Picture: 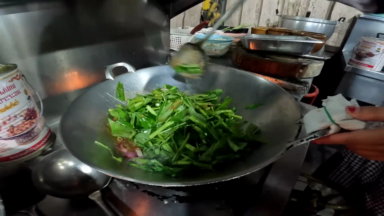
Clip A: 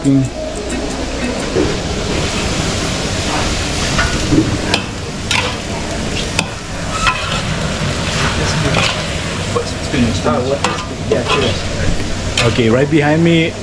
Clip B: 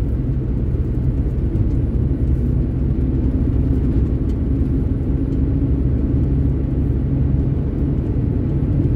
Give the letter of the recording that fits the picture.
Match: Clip A